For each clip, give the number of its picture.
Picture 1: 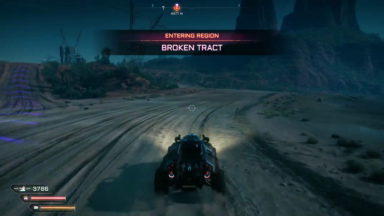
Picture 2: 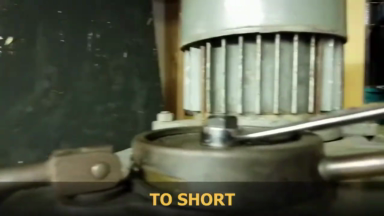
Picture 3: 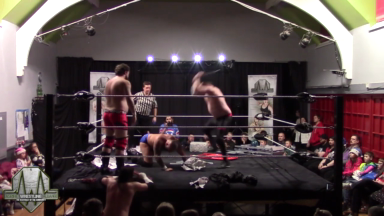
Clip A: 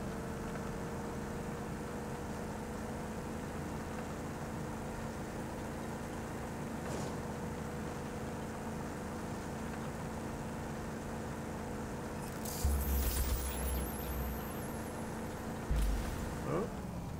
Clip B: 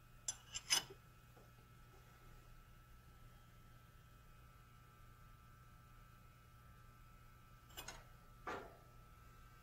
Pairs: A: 1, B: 2